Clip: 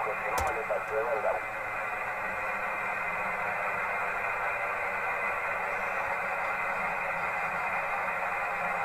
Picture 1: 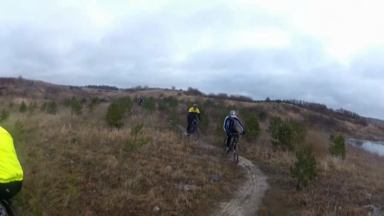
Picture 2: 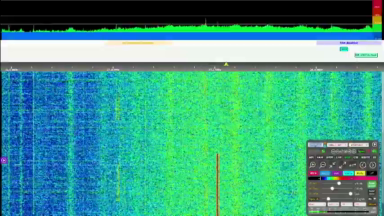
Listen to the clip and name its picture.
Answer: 2